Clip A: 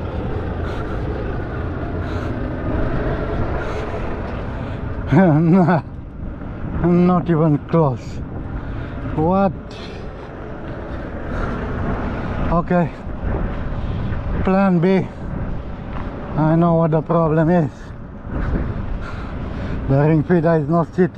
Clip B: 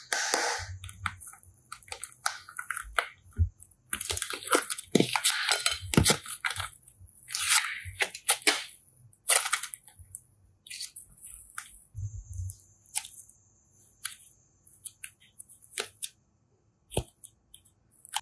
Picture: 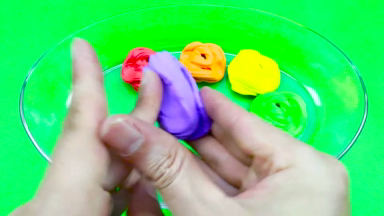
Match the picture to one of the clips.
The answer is B